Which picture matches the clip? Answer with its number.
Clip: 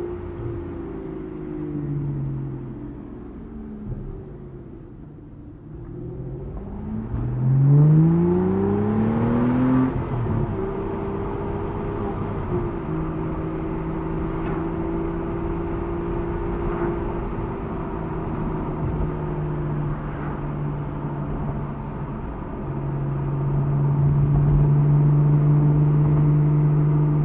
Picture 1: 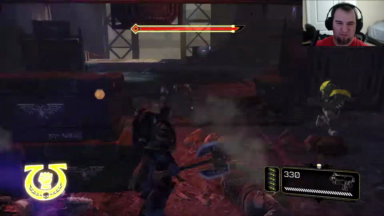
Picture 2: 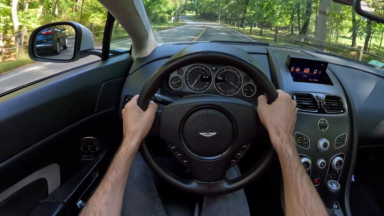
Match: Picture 2